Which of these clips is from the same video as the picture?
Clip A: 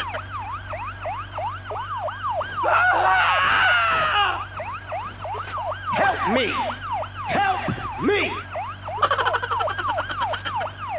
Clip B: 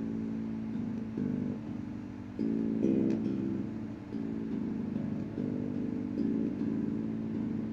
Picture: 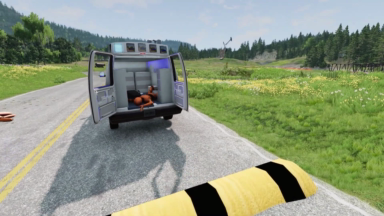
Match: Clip A